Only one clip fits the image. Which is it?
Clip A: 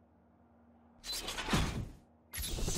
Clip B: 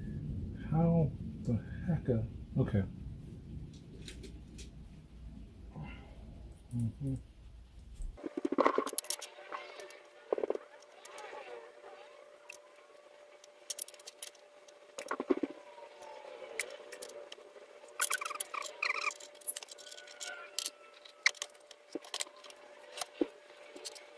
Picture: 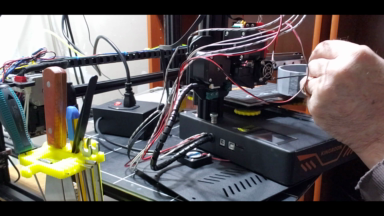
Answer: B